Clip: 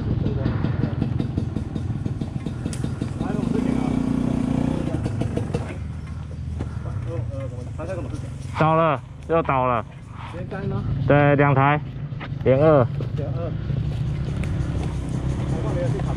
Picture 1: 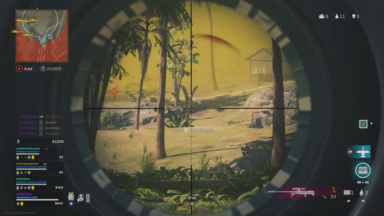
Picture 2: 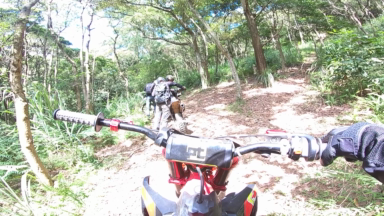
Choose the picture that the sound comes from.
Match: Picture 2